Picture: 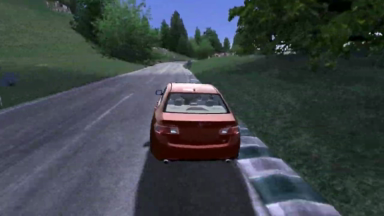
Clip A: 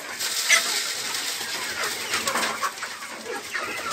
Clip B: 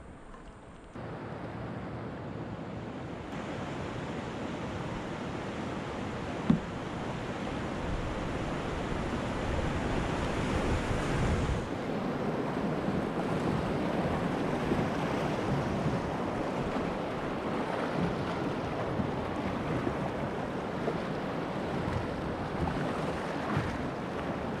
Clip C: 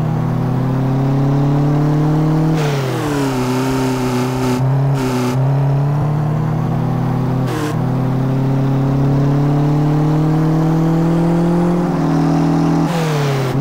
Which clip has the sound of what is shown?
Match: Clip C